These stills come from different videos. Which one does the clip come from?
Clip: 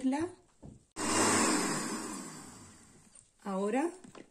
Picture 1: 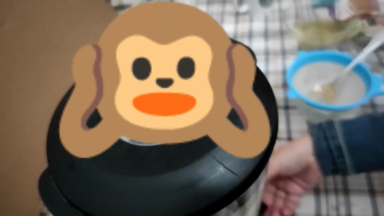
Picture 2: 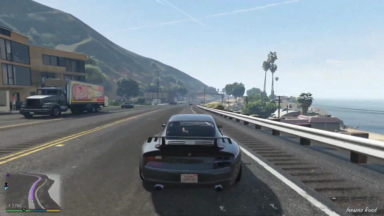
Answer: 1